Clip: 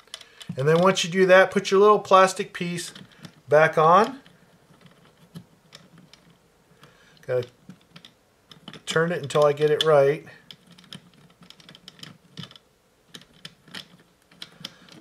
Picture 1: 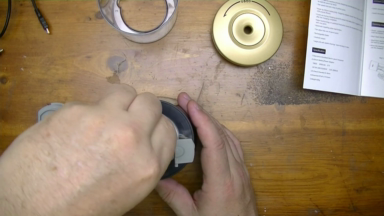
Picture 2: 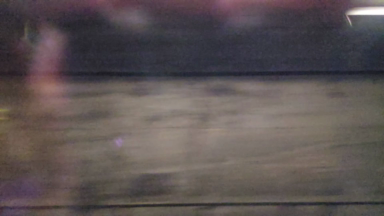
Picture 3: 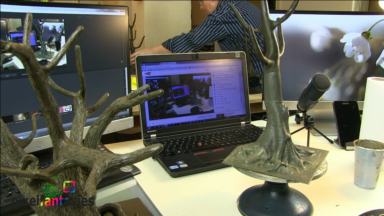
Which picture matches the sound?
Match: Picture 1